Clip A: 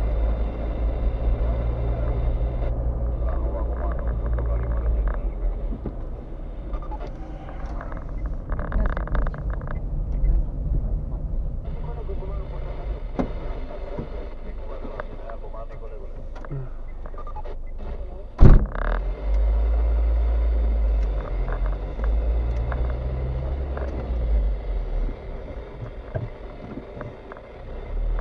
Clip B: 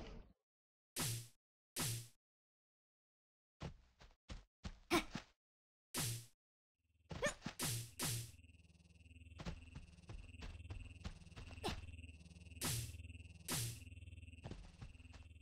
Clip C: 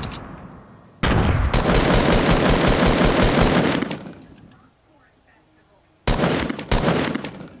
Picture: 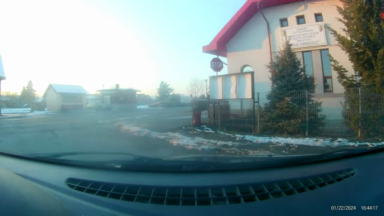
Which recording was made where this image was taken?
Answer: A